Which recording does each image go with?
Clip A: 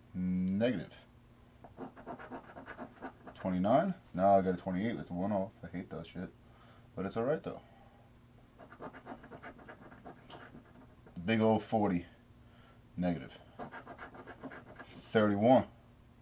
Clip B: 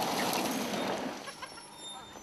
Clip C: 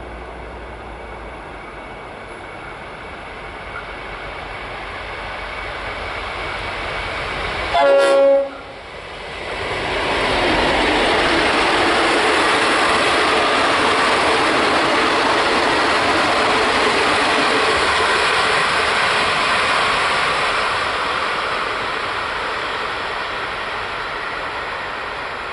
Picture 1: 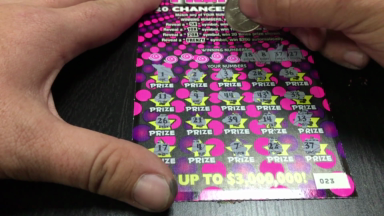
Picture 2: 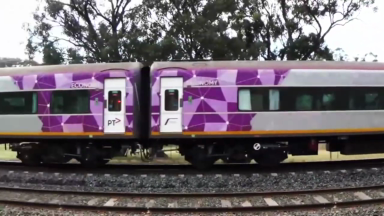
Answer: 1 A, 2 C